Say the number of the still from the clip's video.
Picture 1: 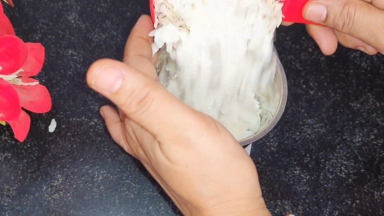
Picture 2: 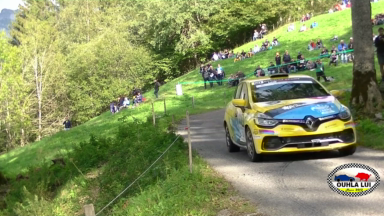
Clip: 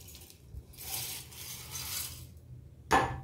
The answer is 1